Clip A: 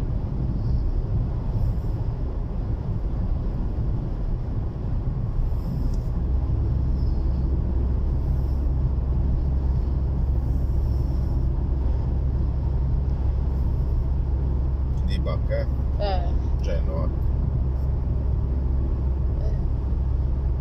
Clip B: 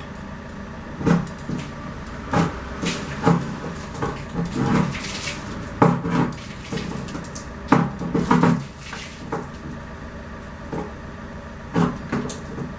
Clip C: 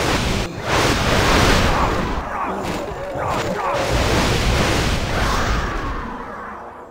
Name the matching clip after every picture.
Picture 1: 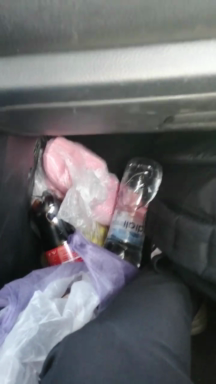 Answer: A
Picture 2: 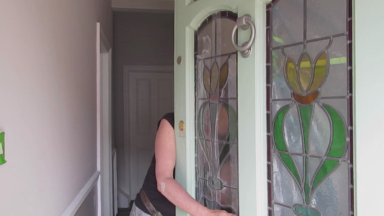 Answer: B